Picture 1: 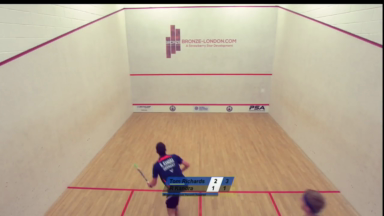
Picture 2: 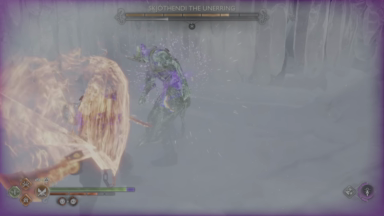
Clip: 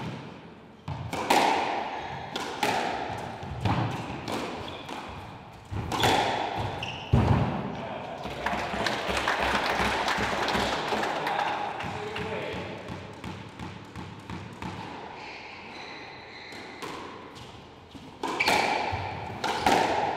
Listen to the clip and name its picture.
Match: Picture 1